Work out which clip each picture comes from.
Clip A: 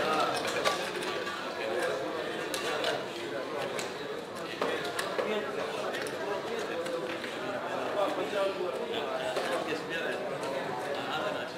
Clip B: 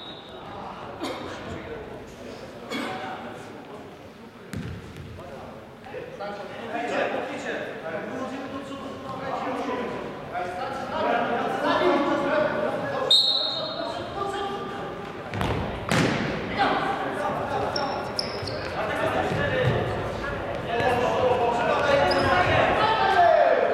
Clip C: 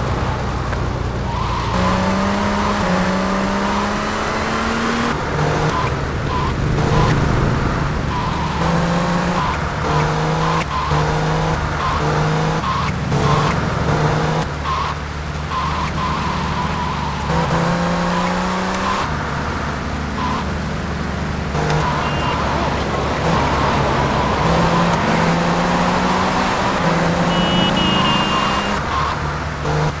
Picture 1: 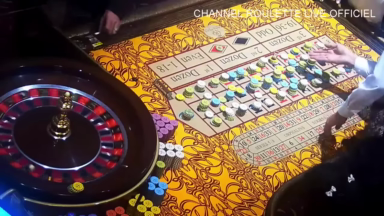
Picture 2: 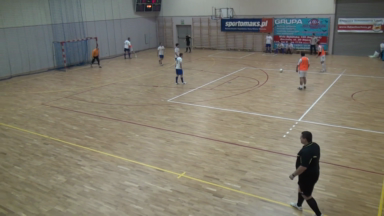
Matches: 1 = A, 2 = B